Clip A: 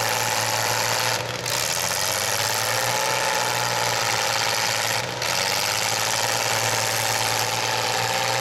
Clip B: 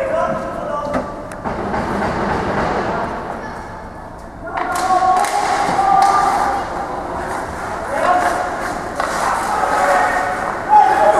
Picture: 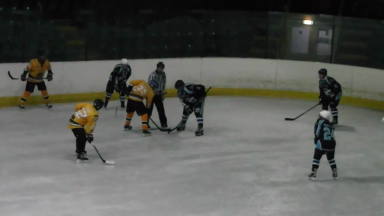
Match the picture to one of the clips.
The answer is B